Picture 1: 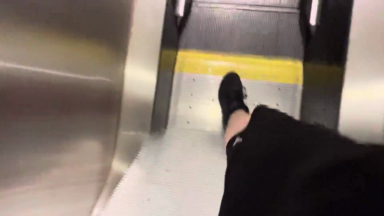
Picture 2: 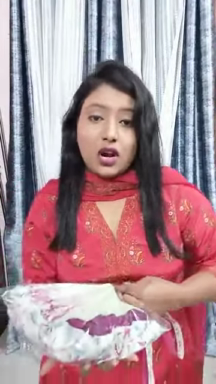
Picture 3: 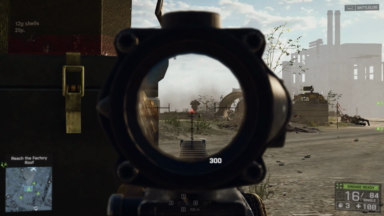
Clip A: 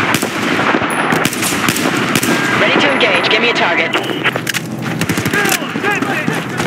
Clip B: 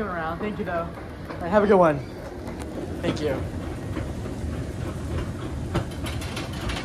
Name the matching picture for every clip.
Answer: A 3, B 1